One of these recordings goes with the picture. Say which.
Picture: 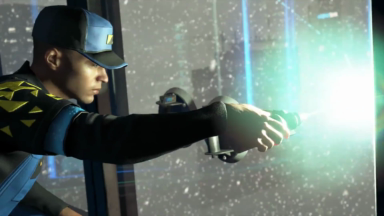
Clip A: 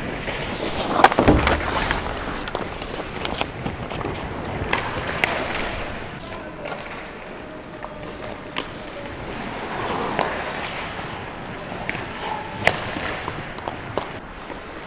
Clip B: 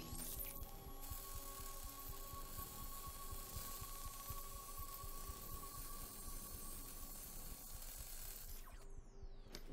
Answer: B